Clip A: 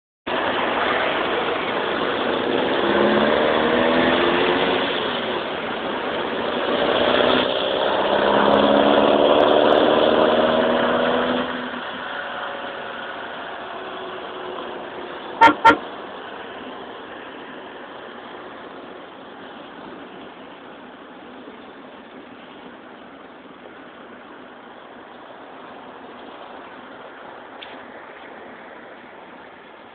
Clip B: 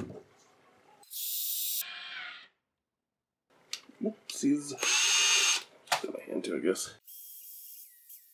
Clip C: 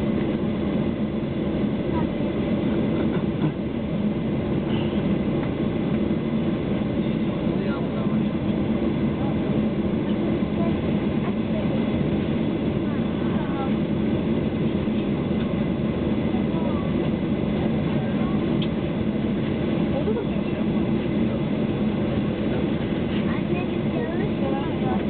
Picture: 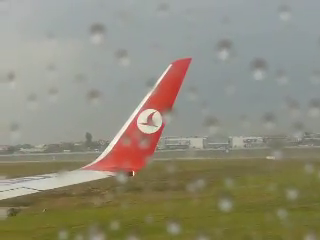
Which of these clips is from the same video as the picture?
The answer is C